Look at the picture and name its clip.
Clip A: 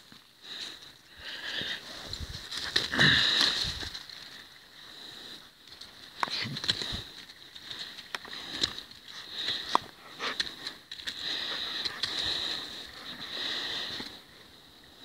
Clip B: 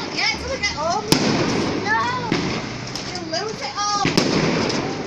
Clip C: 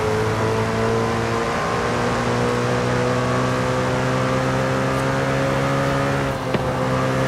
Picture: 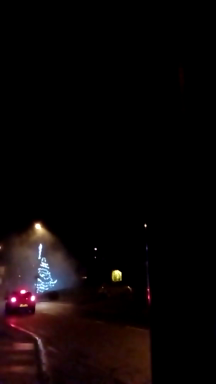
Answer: B